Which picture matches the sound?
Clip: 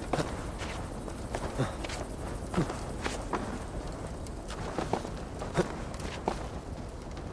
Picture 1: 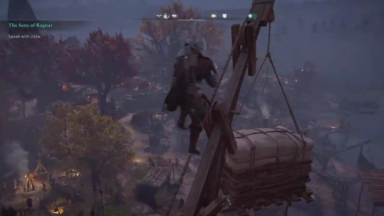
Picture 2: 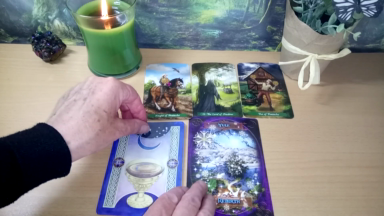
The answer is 1